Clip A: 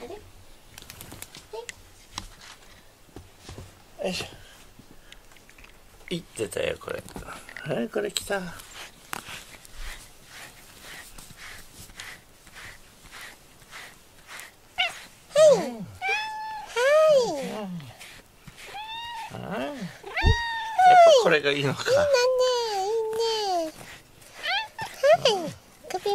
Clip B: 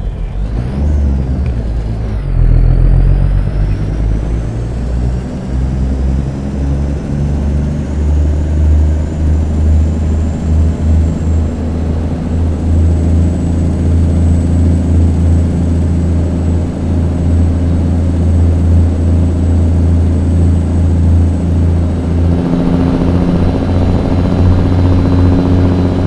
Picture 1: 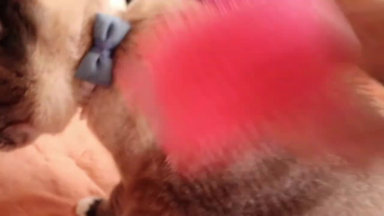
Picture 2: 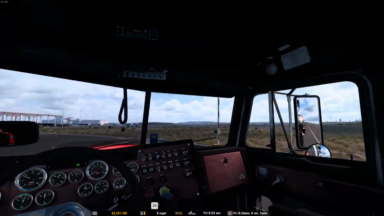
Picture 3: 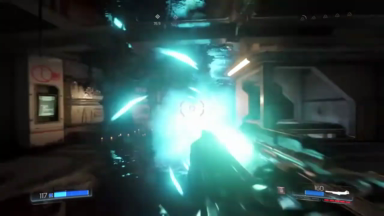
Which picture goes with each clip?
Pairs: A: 1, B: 2